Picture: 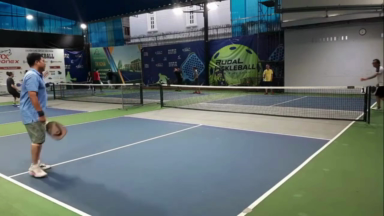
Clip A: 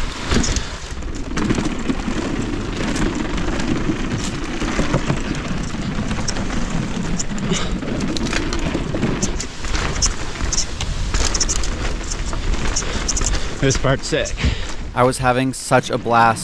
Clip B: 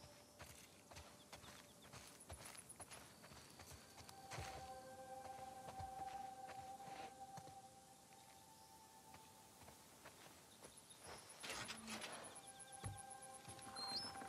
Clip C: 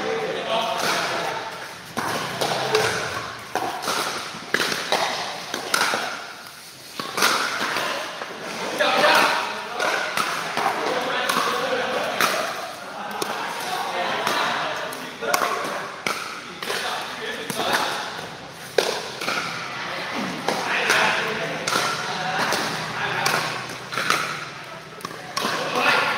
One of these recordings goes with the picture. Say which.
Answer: C